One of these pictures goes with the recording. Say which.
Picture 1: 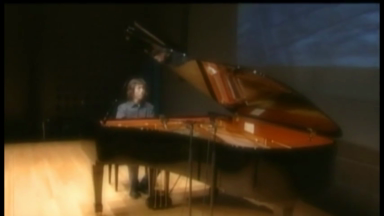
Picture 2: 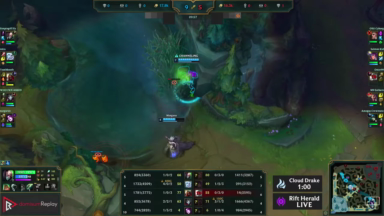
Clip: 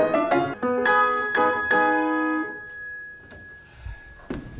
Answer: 1